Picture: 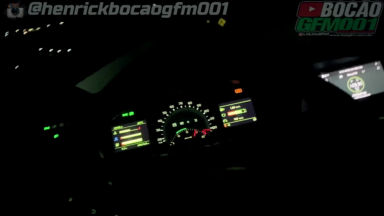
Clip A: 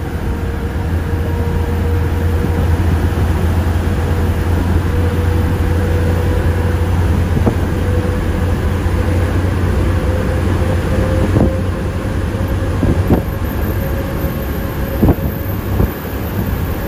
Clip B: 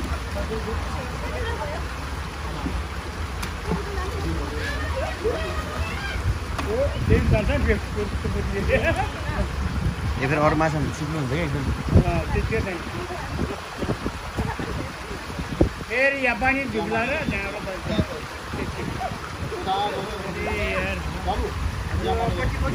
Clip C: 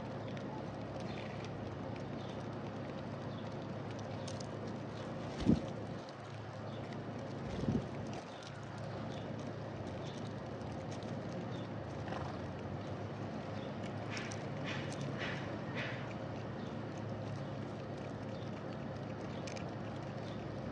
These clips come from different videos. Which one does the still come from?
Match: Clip A